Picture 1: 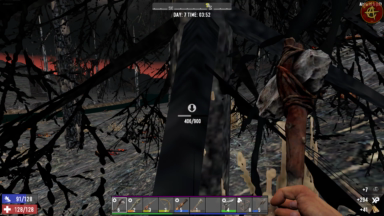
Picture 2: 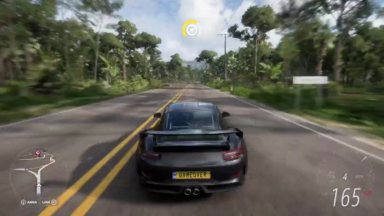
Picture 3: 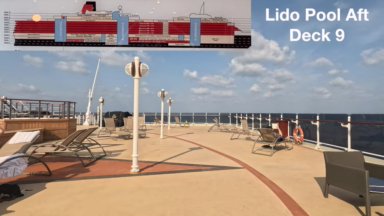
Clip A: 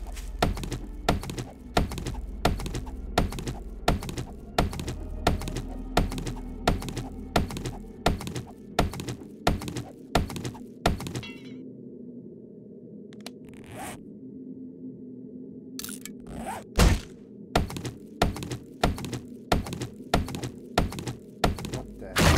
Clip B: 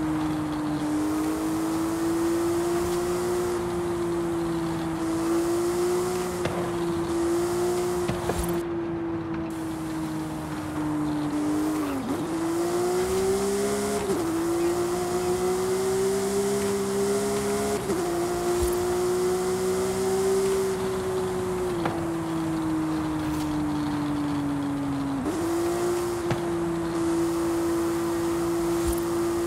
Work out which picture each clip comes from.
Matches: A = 1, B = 2